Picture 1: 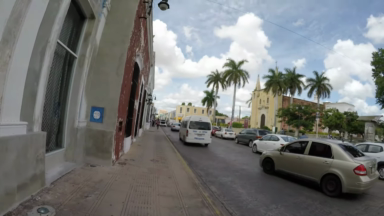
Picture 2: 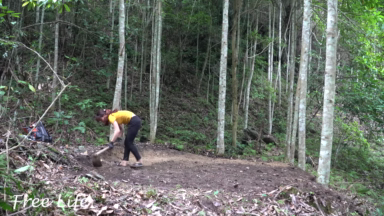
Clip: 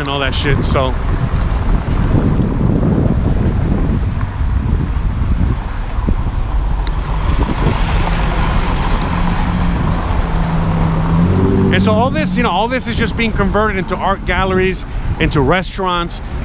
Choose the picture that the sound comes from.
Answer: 1